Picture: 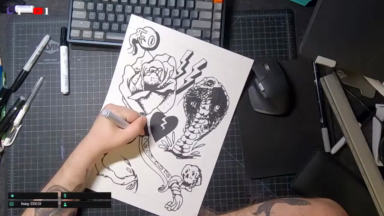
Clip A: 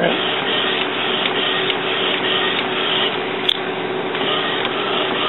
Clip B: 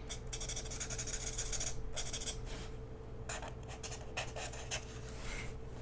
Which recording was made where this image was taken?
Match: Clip B